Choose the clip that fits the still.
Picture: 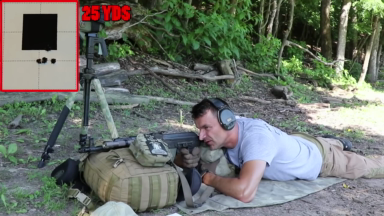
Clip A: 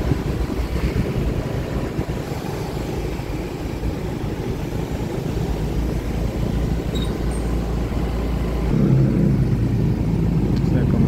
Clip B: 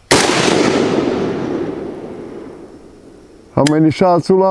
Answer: B